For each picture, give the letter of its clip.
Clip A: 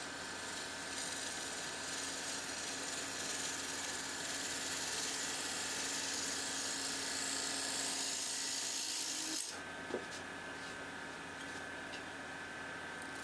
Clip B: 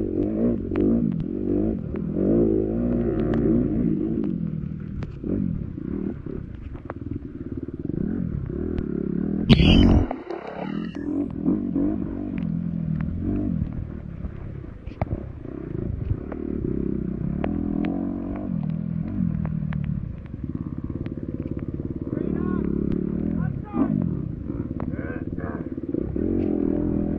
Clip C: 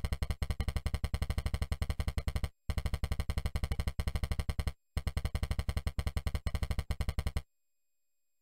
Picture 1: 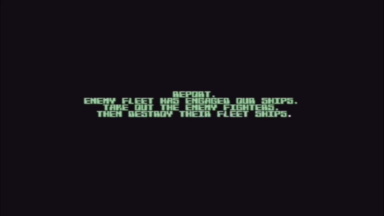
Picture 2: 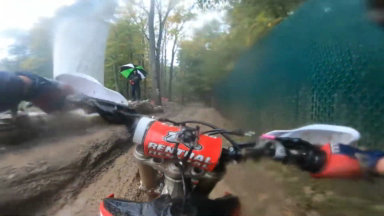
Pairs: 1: C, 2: B